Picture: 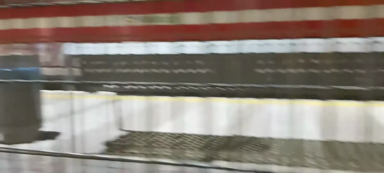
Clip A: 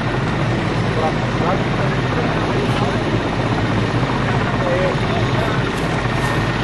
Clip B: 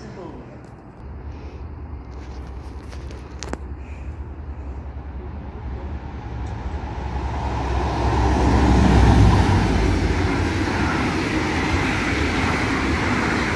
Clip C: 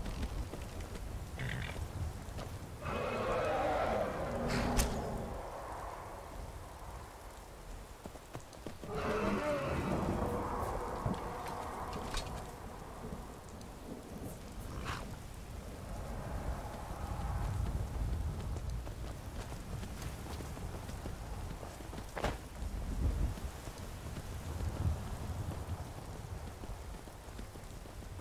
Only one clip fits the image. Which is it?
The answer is B